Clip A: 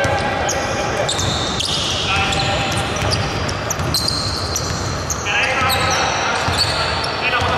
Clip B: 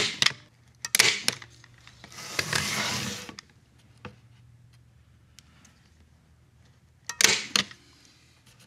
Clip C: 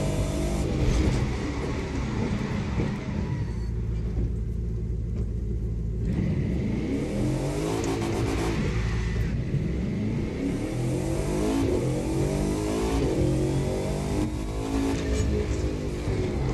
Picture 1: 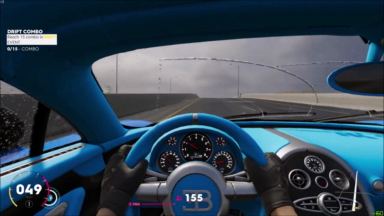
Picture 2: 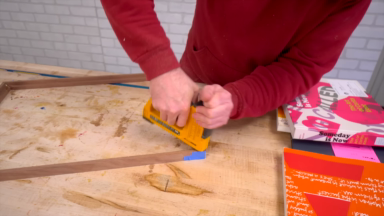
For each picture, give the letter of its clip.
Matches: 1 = C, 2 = B